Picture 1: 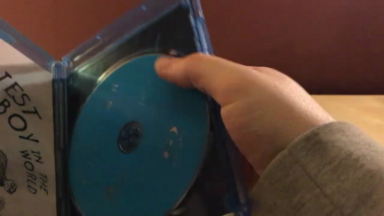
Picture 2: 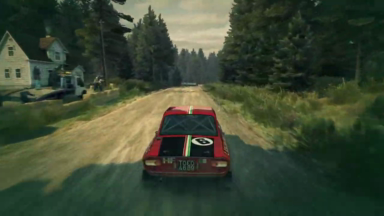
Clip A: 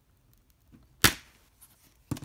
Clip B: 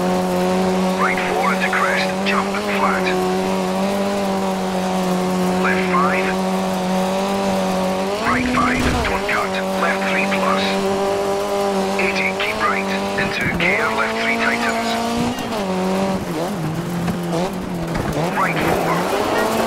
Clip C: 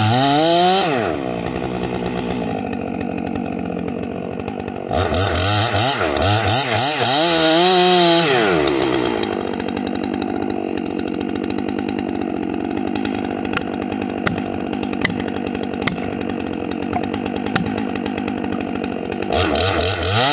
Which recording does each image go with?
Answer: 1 A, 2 B